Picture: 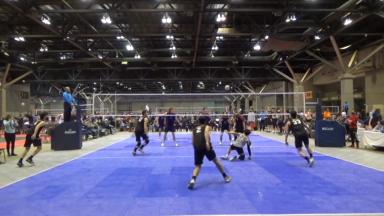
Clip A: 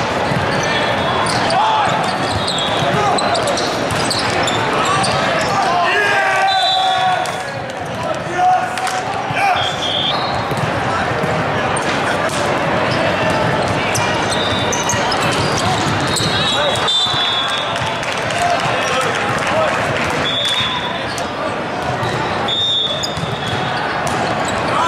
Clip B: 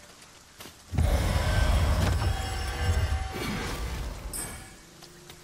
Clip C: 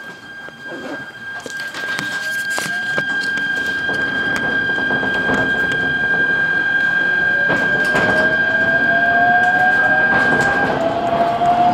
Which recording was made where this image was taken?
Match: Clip A